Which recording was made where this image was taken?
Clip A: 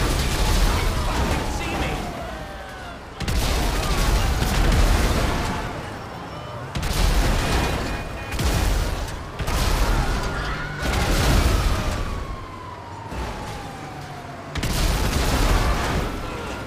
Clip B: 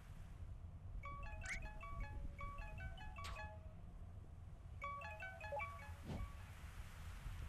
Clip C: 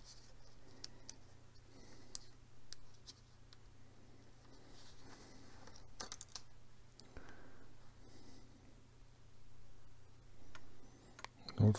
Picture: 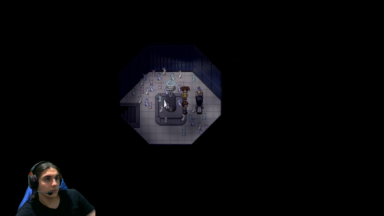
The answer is B